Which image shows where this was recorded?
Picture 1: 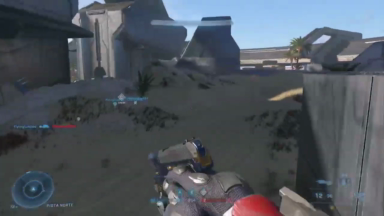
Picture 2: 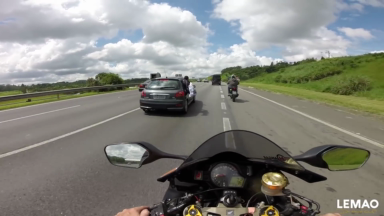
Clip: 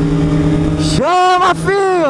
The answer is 2